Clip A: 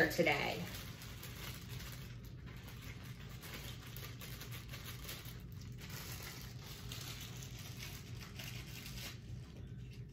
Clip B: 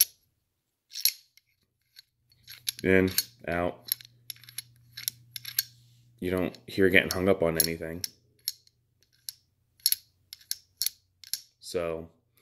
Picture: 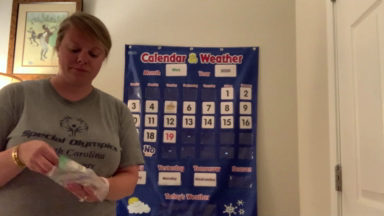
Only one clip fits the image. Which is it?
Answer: A